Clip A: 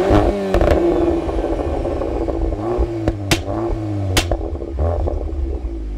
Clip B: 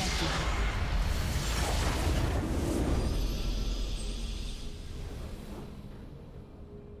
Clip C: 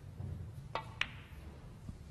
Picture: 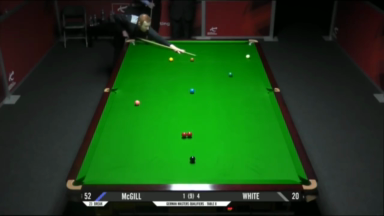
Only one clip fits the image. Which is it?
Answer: C